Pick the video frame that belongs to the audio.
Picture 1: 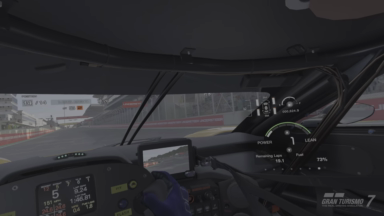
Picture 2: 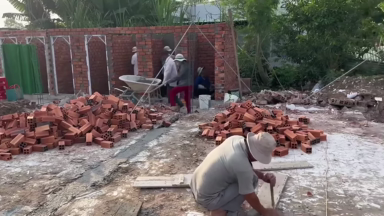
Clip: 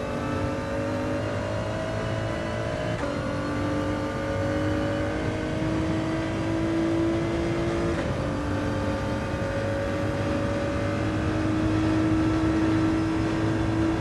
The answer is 1